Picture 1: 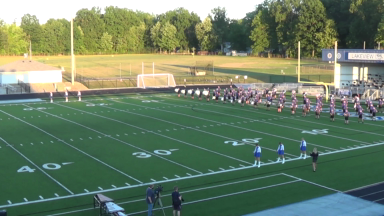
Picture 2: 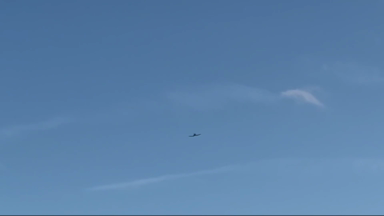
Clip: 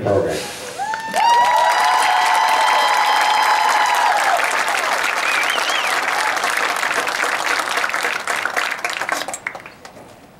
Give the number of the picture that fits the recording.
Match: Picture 1